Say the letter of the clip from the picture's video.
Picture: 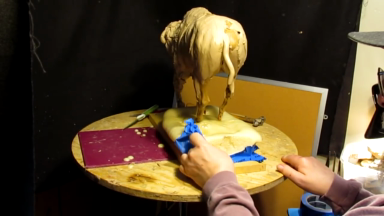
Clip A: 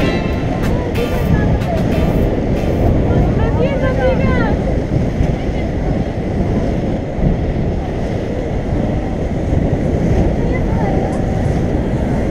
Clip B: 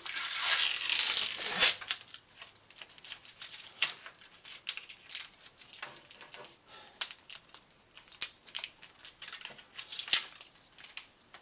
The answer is B